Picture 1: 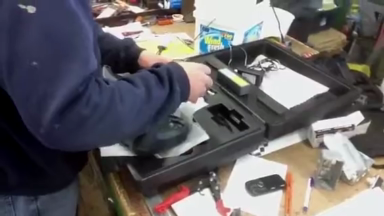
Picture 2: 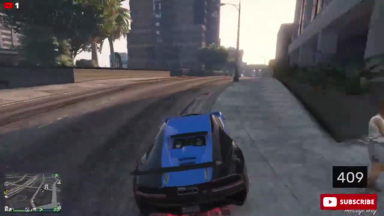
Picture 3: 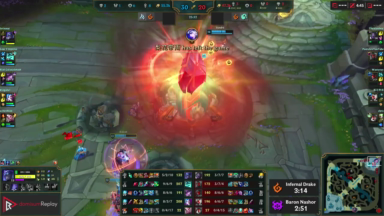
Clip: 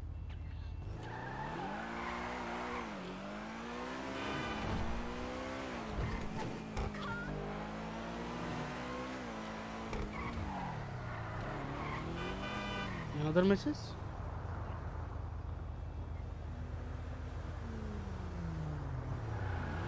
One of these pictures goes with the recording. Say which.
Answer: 2